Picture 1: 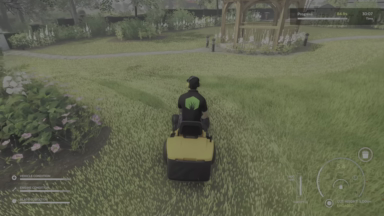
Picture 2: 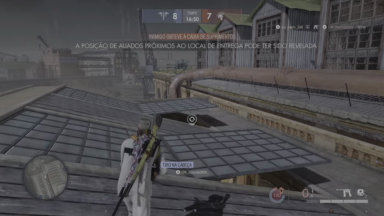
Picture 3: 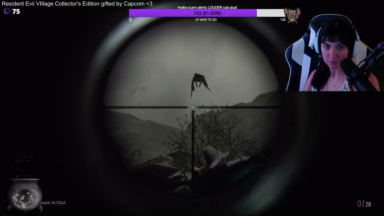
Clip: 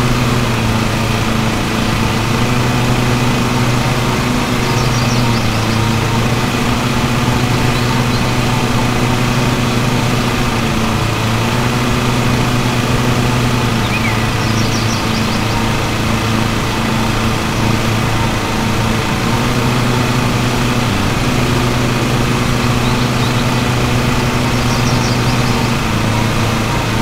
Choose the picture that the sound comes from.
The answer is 1